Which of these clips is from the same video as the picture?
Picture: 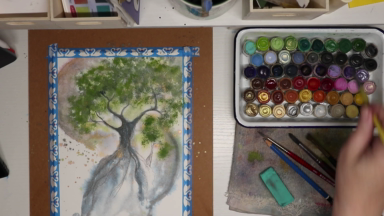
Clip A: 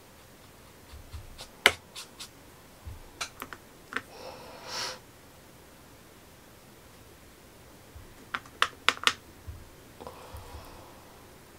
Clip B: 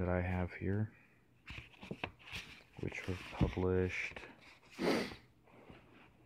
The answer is A